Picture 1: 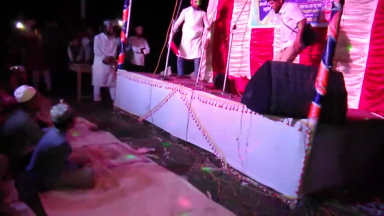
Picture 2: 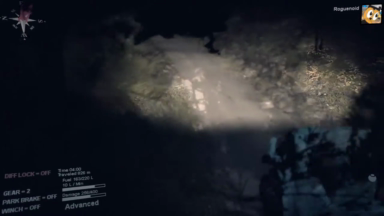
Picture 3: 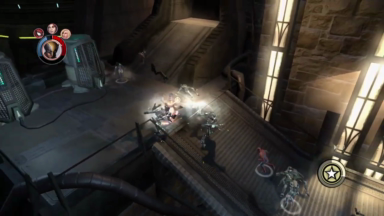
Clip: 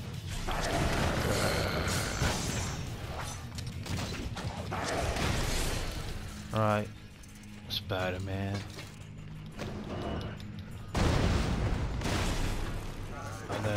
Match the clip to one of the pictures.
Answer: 3